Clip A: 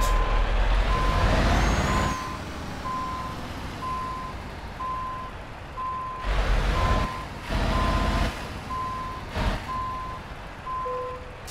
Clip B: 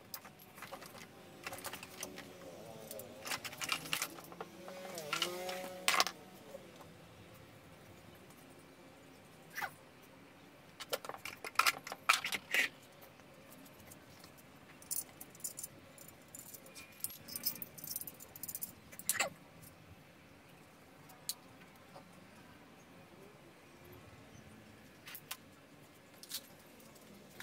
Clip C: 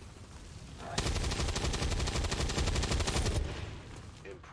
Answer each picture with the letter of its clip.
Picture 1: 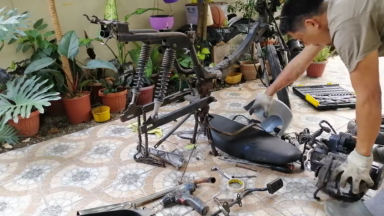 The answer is B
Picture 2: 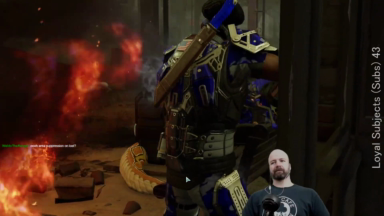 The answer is C